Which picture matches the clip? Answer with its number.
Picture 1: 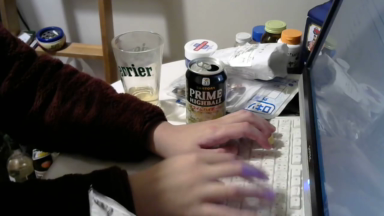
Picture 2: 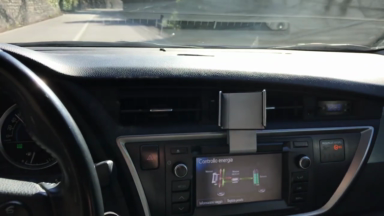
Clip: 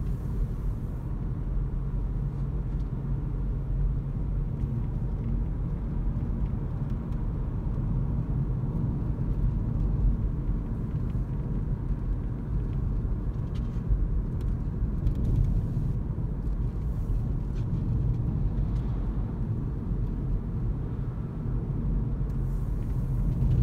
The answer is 2